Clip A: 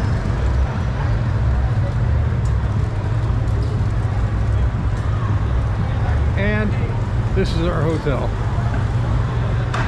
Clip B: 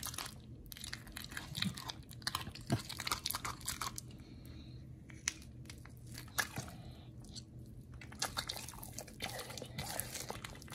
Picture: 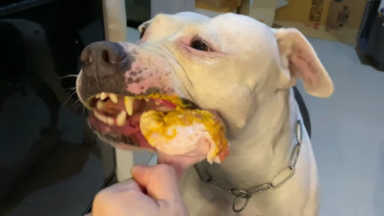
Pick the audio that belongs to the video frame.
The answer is B